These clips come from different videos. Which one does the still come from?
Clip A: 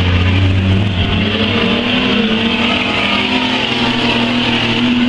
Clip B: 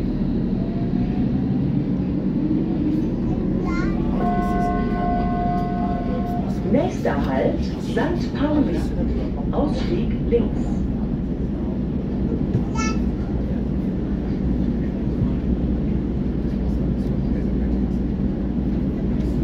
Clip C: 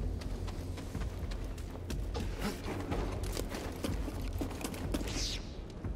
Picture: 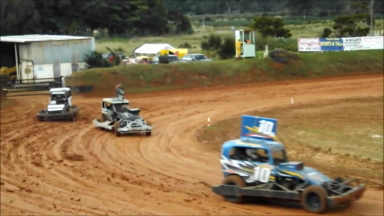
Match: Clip A